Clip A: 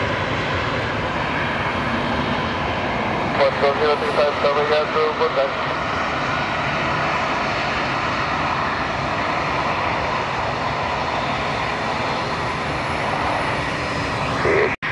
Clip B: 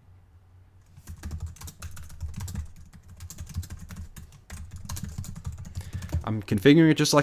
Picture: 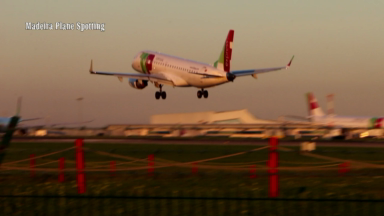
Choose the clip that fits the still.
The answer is A